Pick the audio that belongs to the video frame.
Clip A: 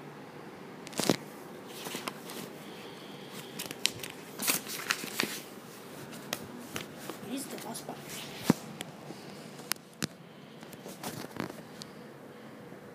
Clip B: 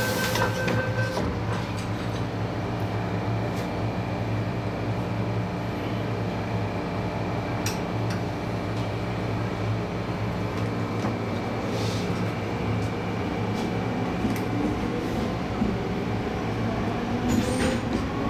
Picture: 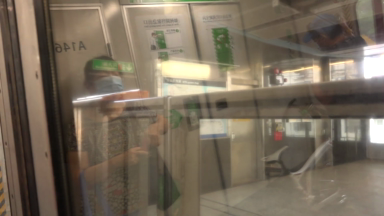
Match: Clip B